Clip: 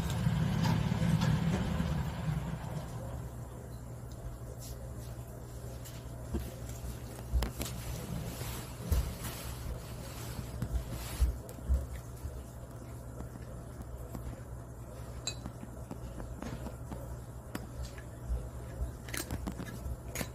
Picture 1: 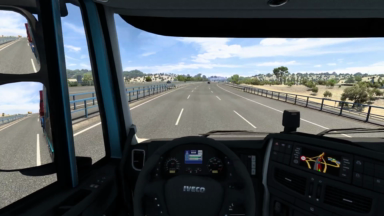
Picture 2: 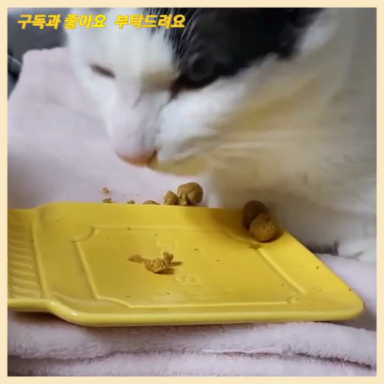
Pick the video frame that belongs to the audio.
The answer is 2